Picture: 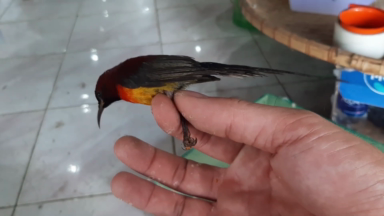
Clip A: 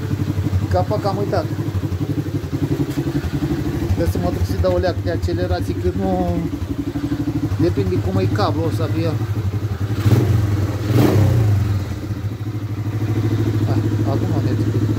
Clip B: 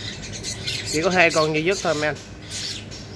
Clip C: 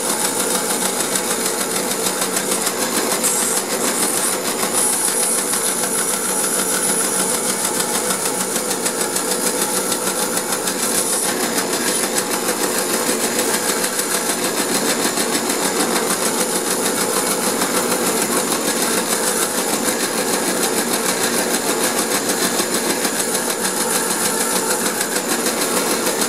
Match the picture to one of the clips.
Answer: B